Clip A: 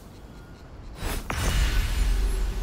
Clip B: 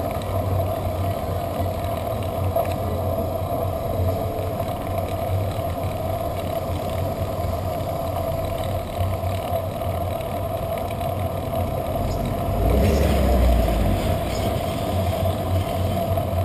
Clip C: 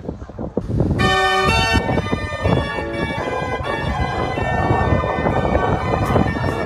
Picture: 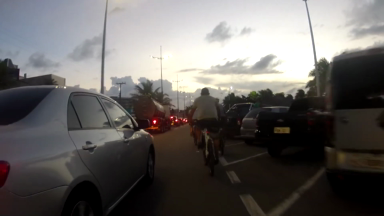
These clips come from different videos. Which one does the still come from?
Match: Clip B